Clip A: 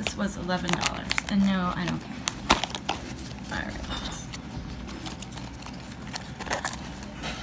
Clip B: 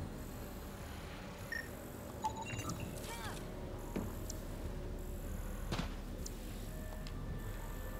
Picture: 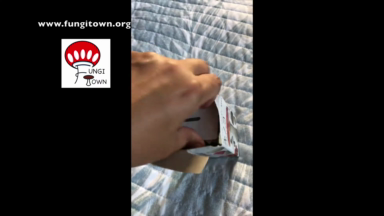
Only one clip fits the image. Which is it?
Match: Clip A